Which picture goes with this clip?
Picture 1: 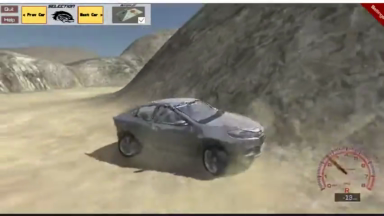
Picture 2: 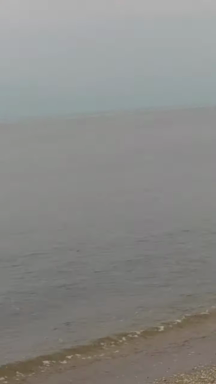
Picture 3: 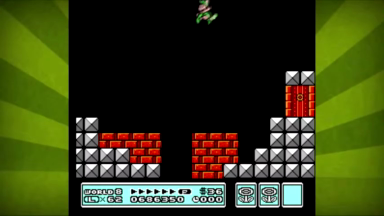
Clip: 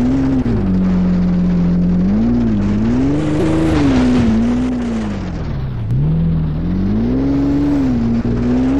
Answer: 1